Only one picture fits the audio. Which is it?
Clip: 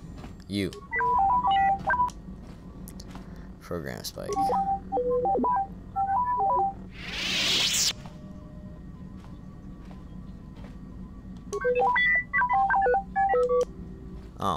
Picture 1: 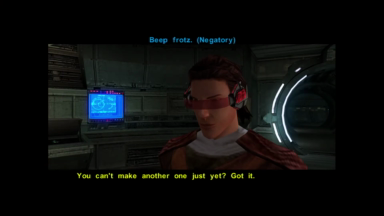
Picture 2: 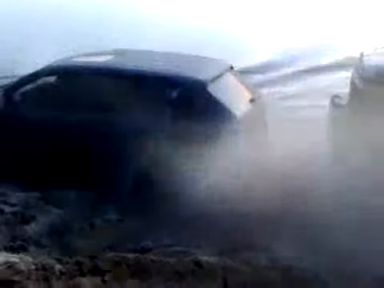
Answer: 1